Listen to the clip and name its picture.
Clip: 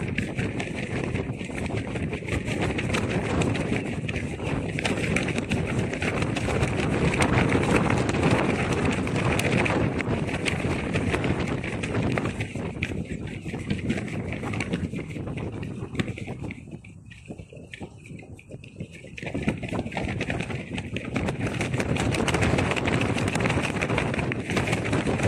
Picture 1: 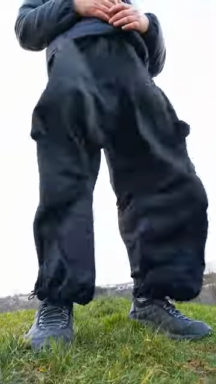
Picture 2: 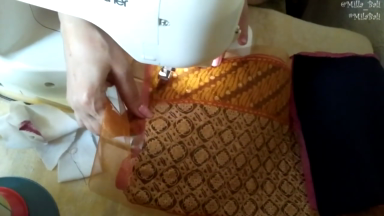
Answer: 1